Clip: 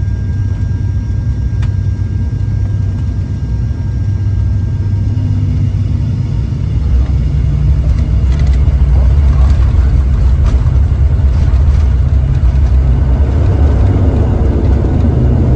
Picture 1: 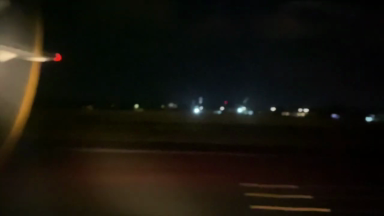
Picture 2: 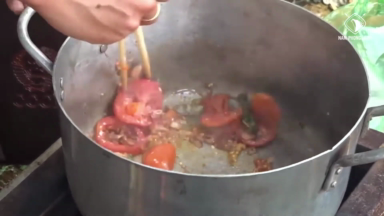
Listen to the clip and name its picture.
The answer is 1